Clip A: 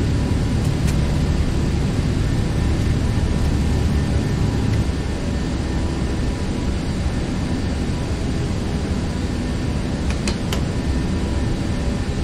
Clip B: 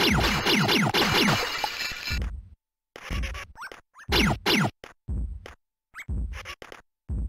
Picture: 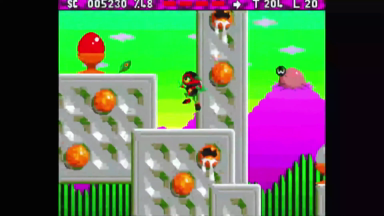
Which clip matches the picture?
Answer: B